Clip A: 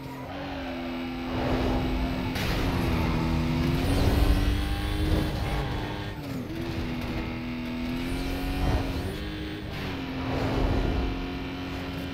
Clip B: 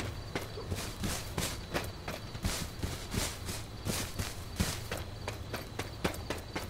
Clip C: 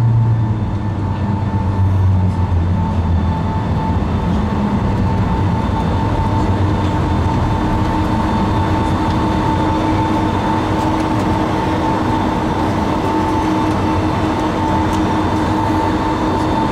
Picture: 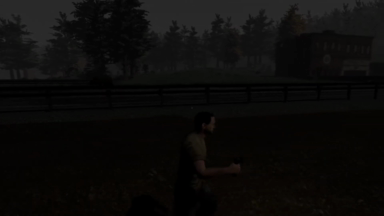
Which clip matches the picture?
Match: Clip B